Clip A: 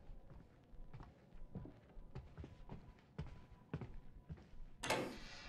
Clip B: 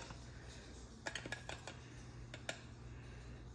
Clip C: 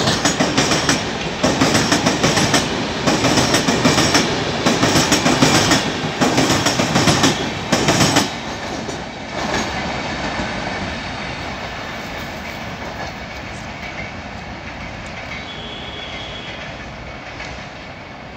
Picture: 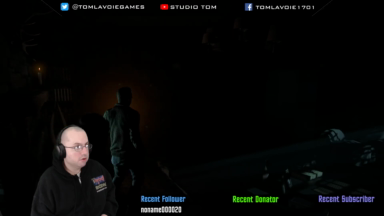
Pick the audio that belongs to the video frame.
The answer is A